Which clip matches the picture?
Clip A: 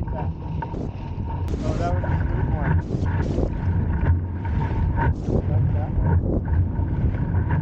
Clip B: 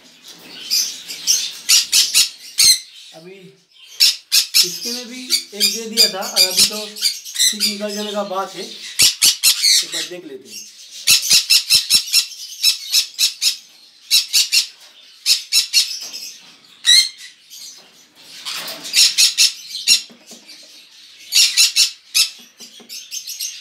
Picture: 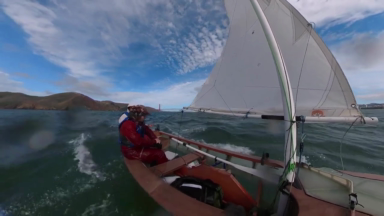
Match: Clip A